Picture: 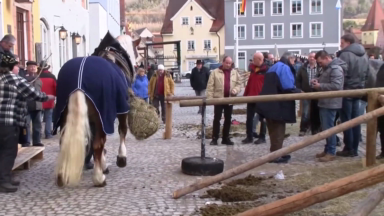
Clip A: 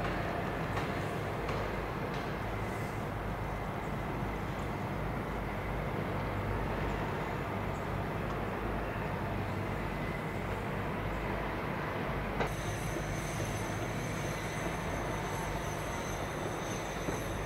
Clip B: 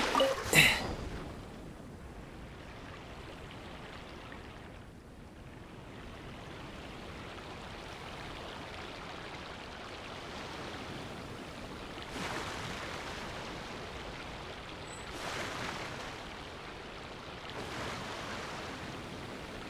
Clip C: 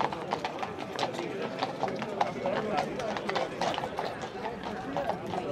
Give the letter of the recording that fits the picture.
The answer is C